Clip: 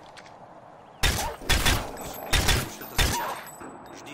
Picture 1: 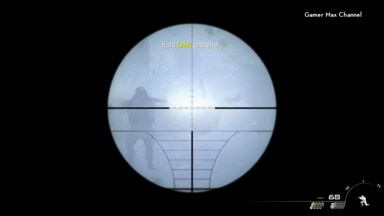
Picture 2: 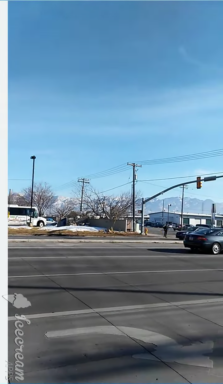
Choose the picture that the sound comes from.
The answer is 1